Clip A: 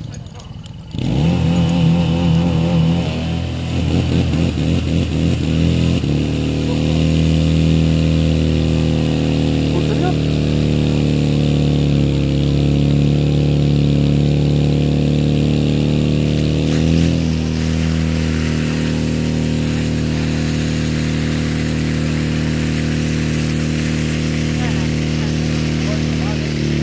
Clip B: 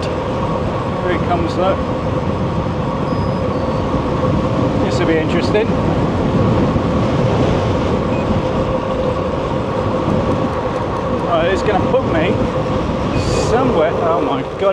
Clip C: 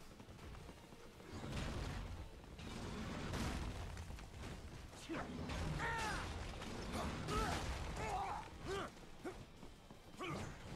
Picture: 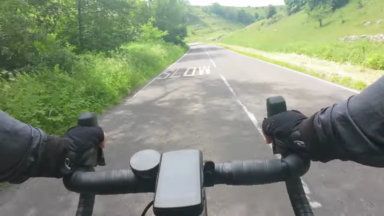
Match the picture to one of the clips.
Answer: B